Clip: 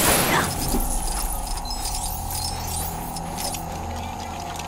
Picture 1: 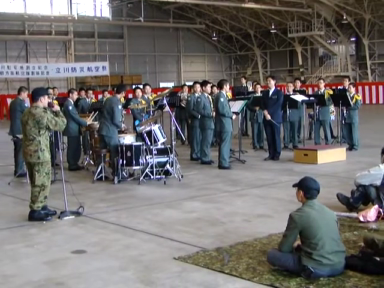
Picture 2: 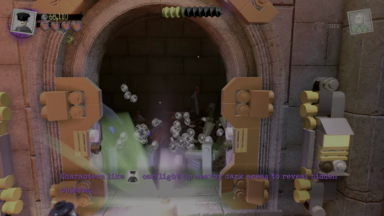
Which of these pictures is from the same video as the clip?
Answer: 2